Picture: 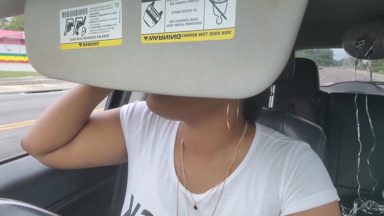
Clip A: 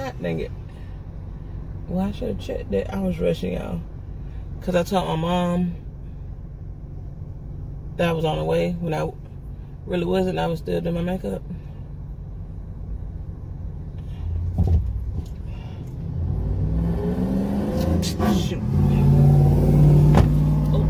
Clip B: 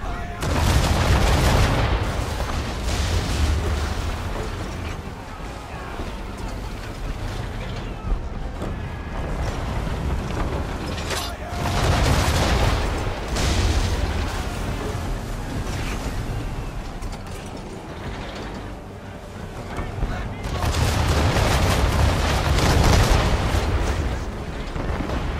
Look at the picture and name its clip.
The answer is A